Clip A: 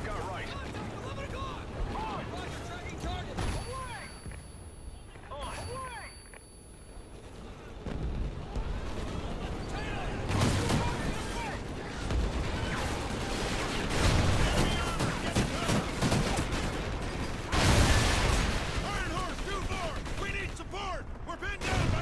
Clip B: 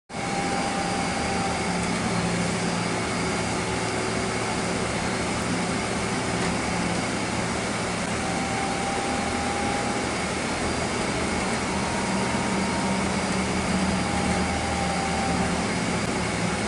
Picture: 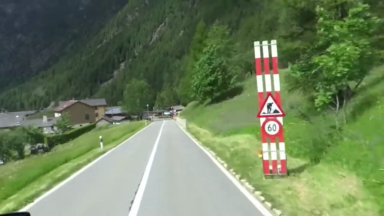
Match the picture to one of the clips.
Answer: B